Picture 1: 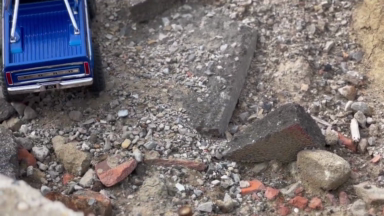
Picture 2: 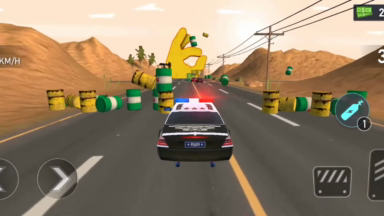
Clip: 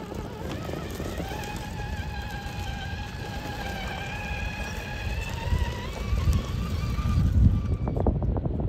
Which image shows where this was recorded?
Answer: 1